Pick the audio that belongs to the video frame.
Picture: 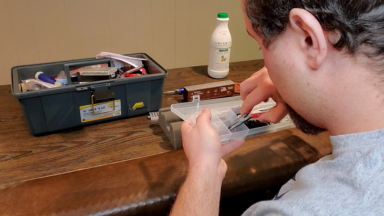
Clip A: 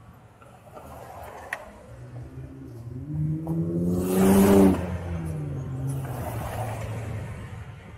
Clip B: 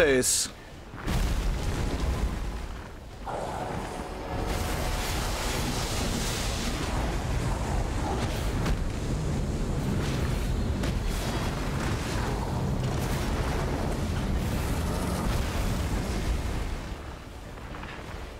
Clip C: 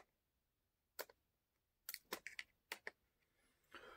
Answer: C